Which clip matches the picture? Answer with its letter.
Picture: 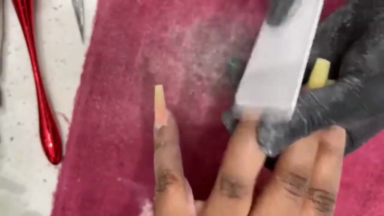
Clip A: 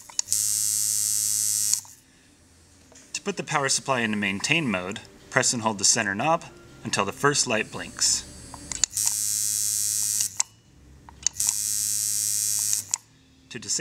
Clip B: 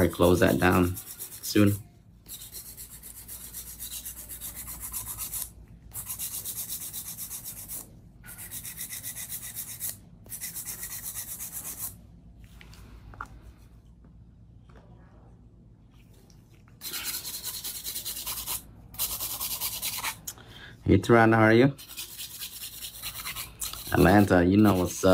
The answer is B